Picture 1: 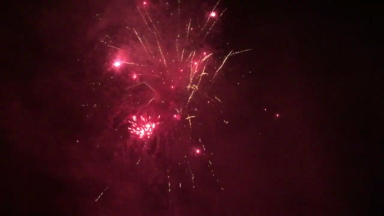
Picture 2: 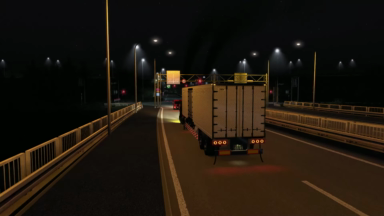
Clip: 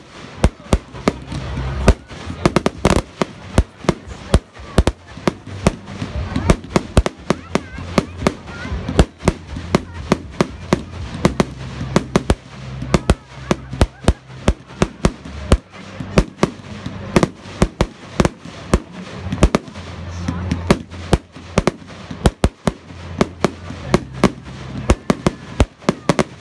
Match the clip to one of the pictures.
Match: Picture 1